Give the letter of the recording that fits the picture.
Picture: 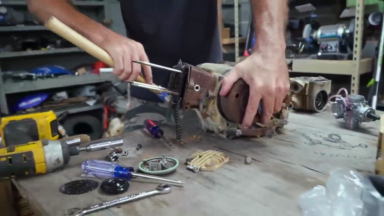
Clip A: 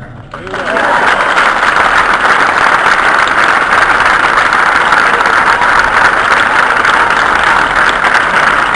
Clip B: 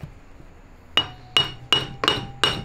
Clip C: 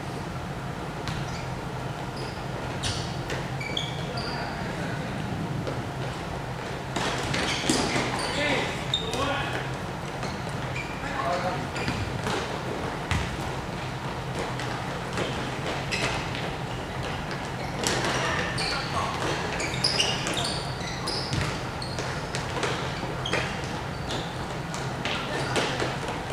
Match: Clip B